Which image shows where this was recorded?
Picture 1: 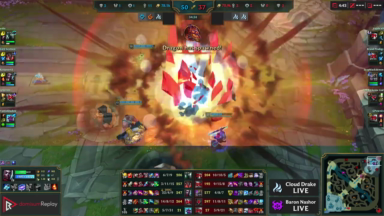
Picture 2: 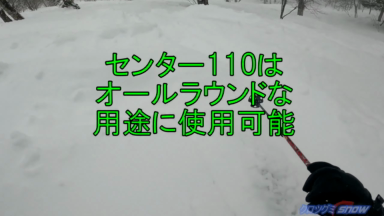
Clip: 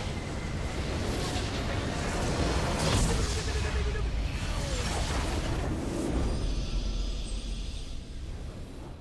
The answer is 1